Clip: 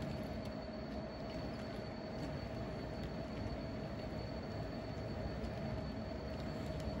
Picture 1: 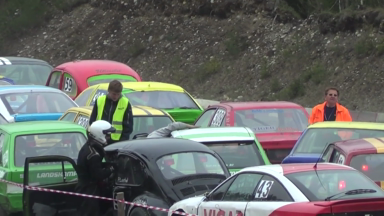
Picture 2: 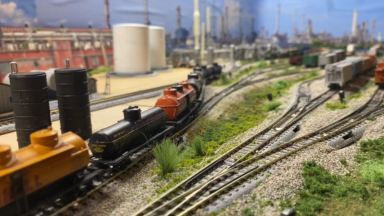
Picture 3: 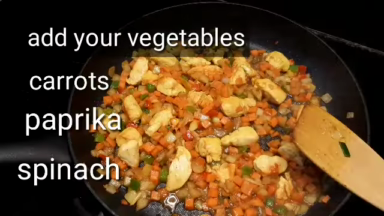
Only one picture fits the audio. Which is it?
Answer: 2